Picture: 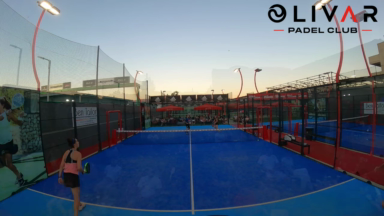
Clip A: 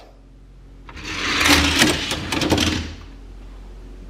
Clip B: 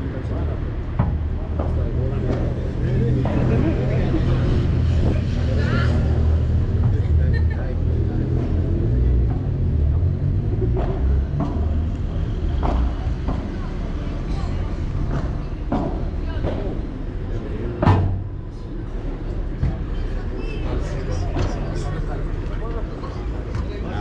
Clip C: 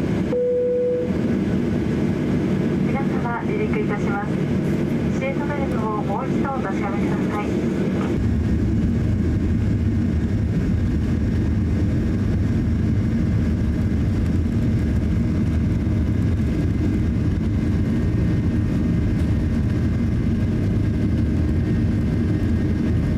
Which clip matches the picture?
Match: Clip B